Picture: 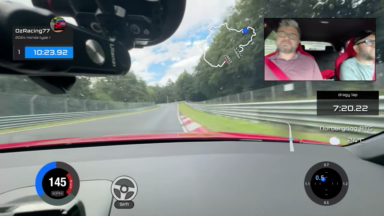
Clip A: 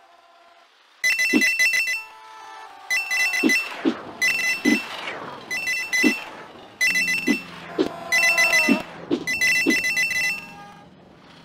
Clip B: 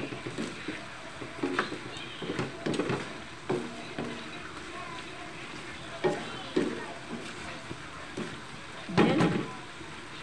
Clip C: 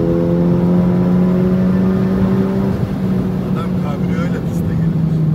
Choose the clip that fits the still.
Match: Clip C